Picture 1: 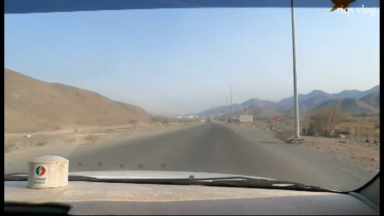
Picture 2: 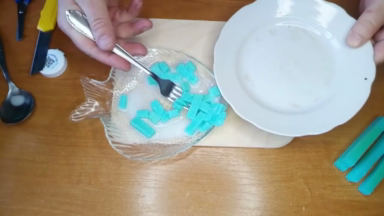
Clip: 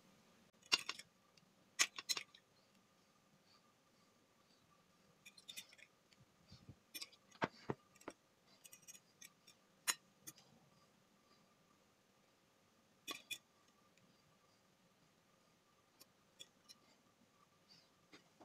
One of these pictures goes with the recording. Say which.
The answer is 2